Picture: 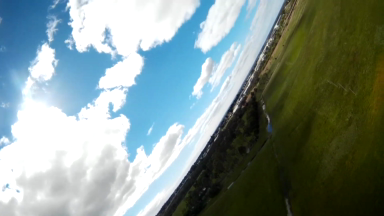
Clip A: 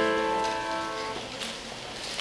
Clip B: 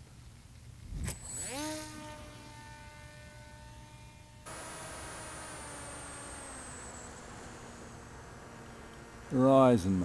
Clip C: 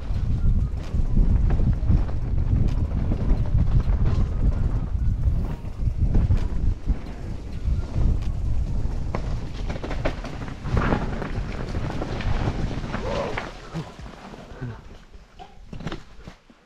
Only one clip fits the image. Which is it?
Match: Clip B